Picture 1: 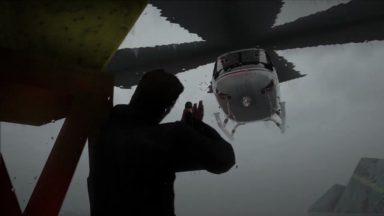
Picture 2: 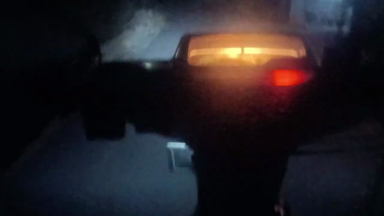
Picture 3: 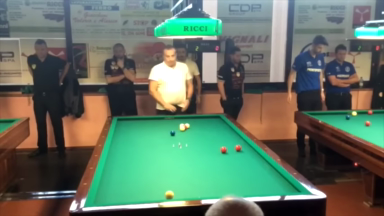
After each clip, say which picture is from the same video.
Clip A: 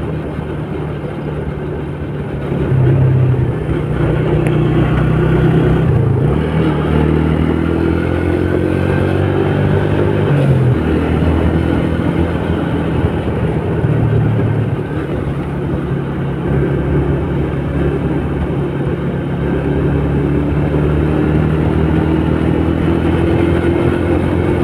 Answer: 2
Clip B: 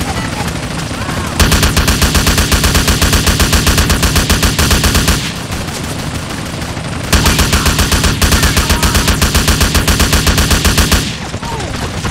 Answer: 1